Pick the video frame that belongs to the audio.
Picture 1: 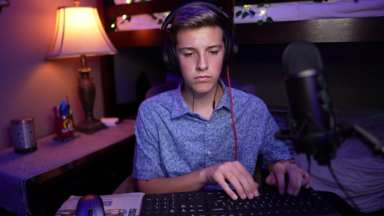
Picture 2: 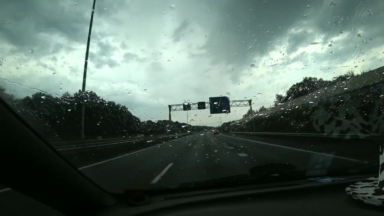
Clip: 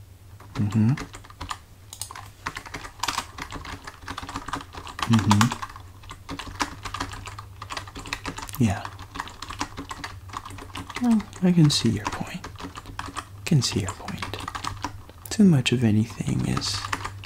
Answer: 1